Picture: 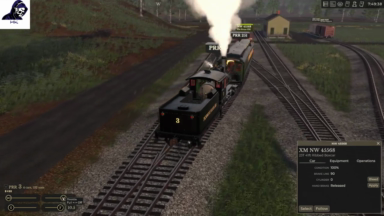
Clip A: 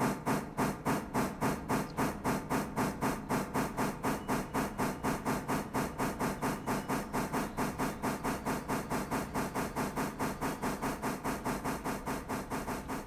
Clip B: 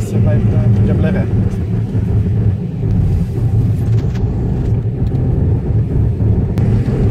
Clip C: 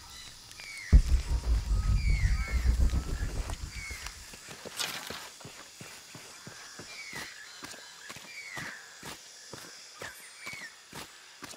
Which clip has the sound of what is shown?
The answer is A